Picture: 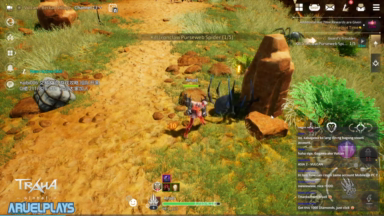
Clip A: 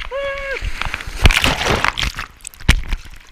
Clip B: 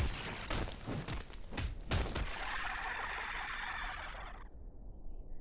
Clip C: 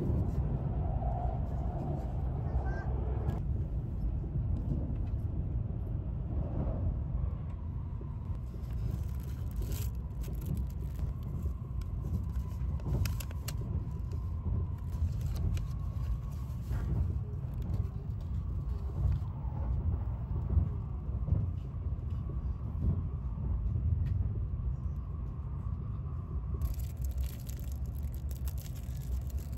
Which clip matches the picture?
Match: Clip B